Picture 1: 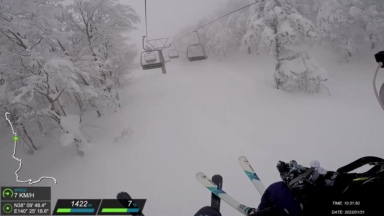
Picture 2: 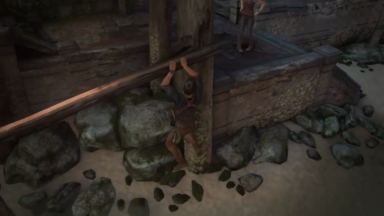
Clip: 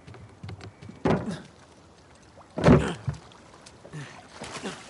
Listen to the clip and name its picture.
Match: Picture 2